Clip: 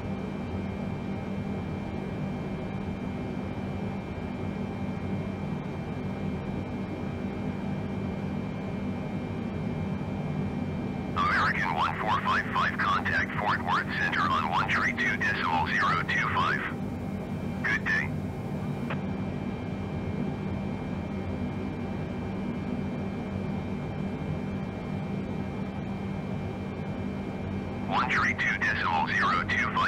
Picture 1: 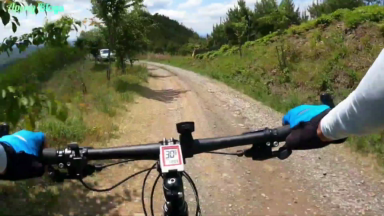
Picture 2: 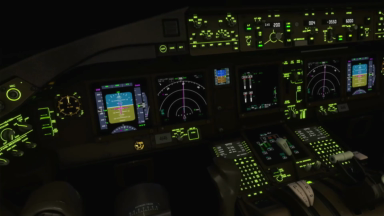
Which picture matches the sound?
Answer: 2